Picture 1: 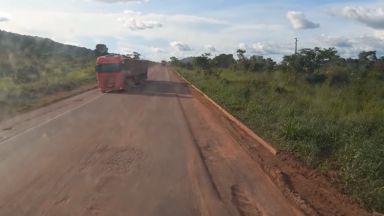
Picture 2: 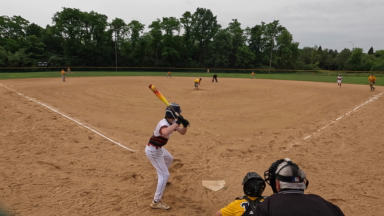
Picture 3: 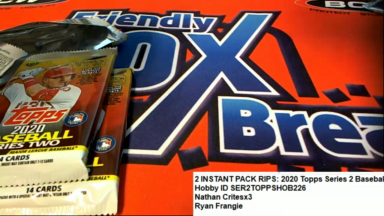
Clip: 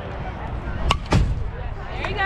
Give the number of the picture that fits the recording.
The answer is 2